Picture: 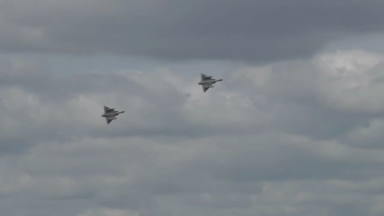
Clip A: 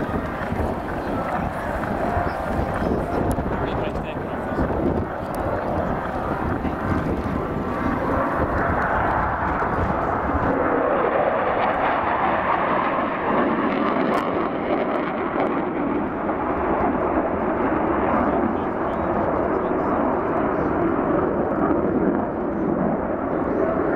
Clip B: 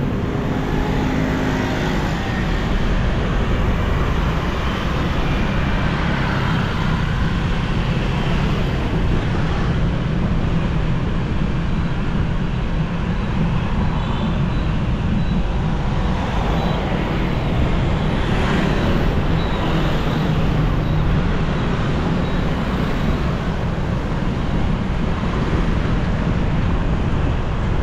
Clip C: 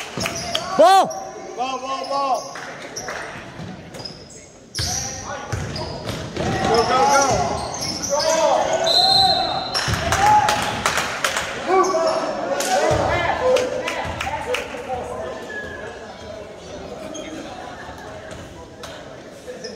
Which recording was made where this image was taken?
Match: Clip A